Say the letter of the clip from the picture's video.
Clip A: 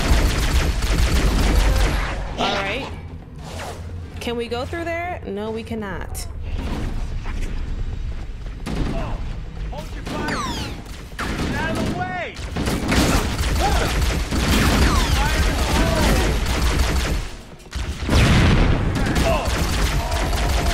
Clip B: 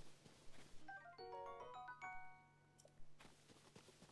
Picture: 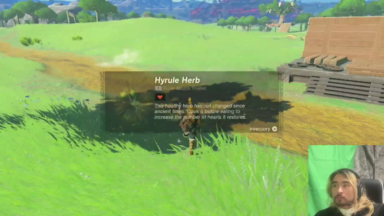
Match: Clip B